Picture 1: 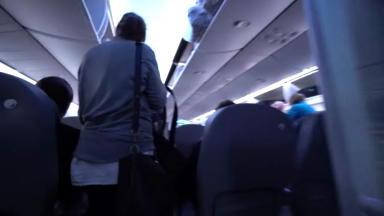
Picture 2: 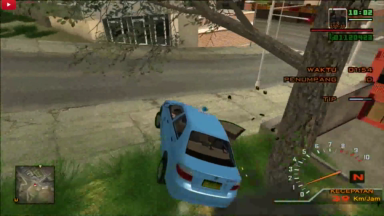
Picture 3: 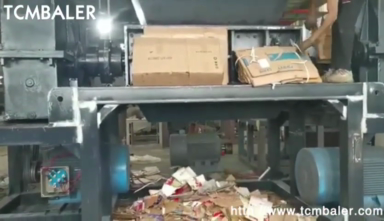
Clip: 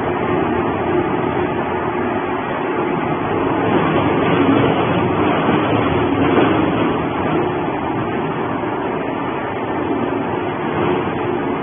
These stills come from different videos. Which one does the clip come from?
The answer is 3